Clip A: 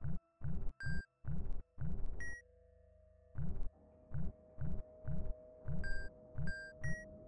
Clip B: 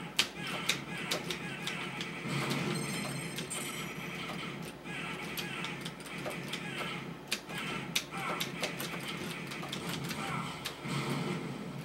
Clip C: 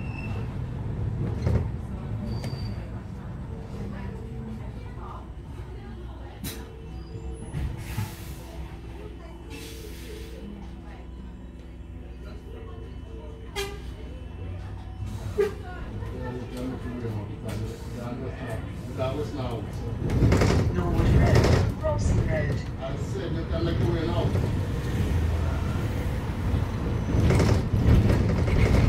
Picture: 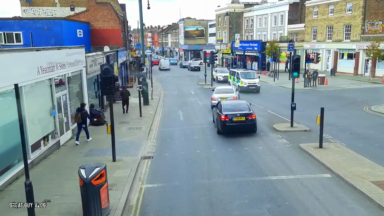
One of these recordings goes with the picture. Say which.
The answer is C